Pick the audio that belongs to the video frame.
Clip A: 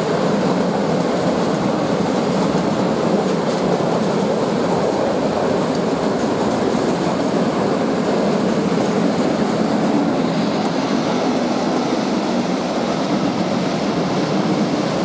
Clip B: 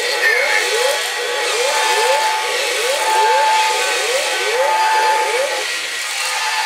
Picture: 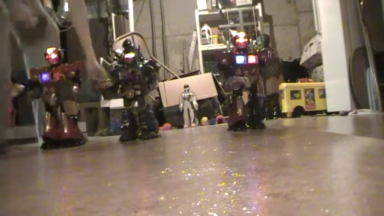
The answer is B